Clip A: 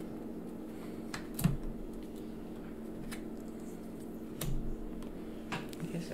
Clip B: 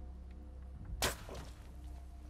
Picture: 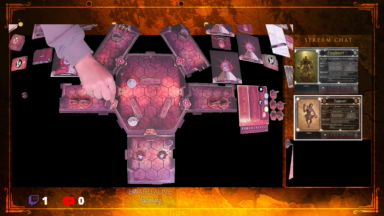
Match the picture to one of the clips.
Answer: A